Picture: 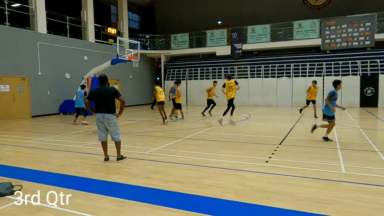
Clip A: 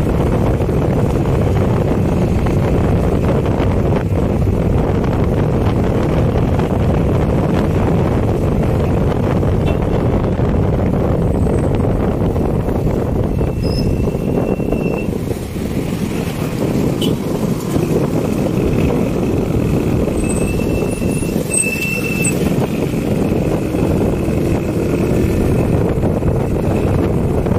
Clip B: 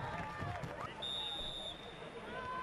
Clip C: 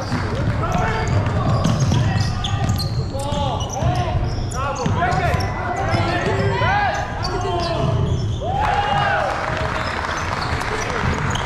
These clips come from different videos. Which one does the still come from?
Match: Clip C